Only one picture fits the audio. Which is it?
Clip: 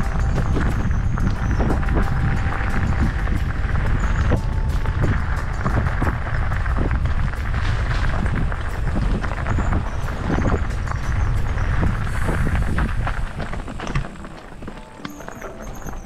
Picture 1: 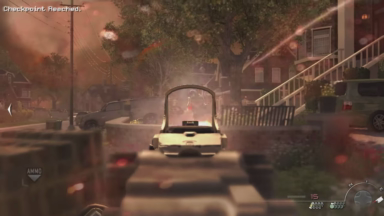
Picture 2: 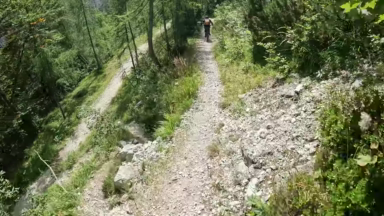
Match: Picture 2